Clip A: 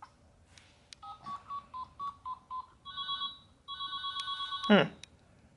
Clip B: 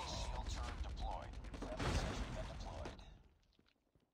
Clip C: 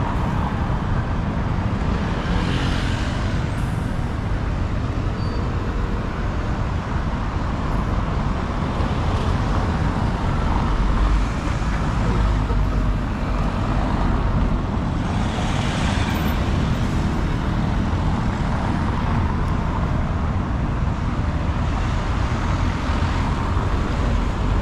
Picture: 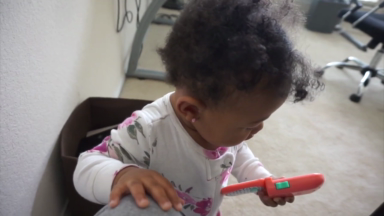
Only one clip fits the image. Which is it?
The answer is A